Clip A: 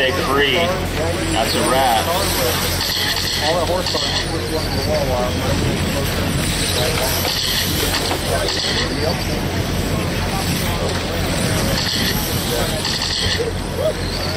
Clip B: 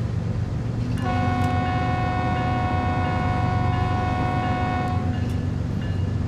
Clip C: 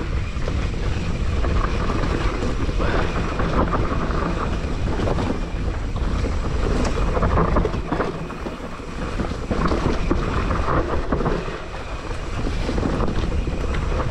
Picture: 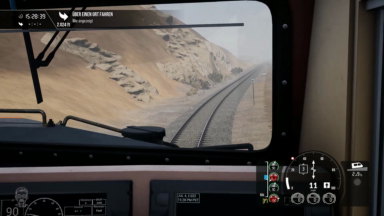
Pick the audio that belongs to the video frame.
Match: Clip B